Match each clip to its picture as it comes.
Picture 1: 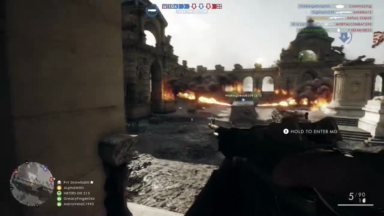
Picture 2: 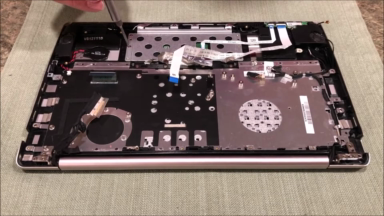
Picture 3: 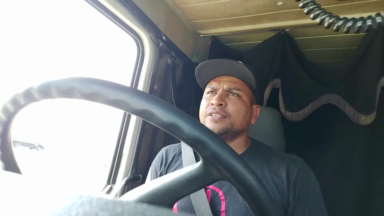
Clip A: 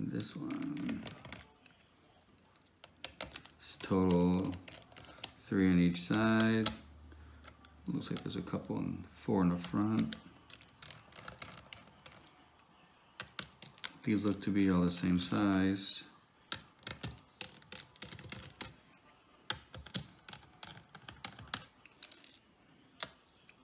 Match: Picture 2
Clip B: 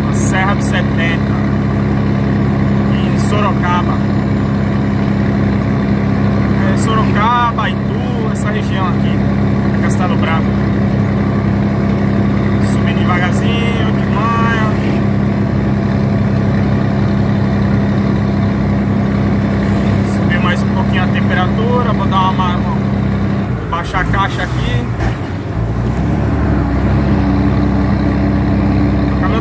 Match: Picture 3